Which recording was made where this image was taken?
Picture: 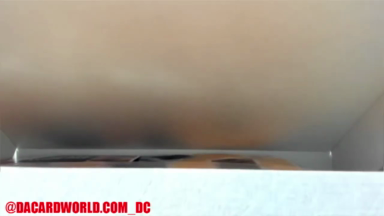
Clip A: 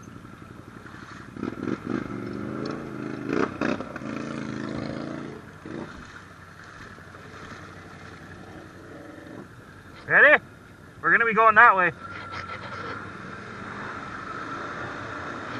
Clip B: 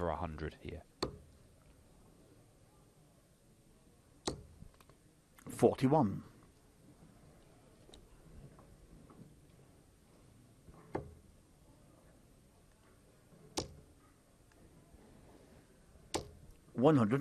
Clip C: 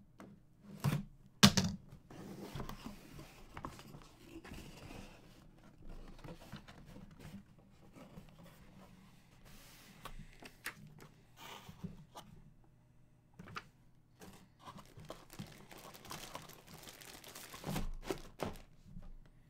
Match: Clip C